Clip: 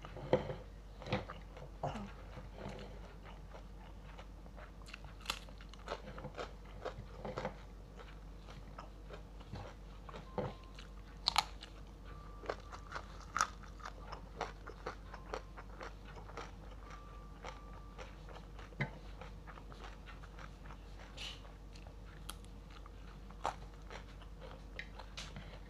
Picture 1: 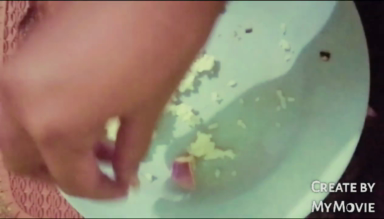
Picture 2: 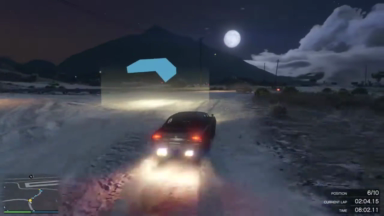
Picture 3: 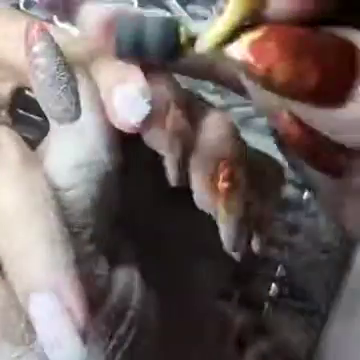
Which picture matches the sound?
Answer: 1